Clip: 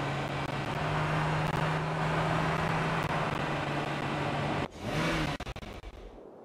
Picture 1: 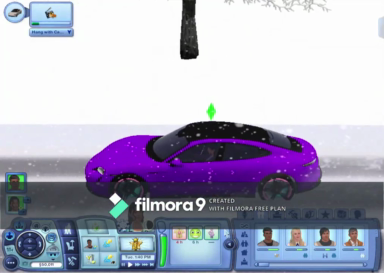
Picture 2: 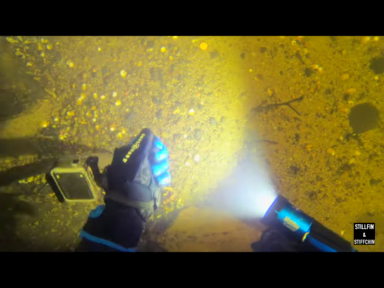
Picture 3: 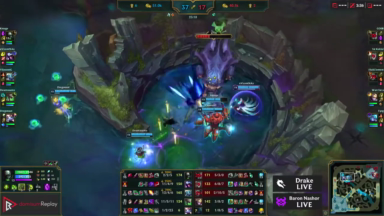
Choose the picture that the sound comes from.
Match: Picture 1